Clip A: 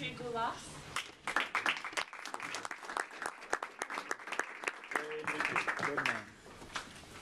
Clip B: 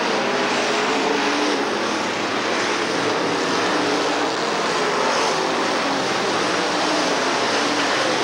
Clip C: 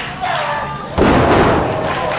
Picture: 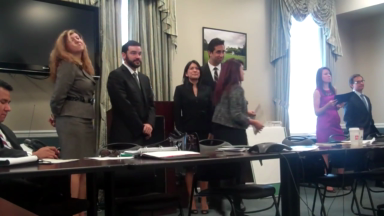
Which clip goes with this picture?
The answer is A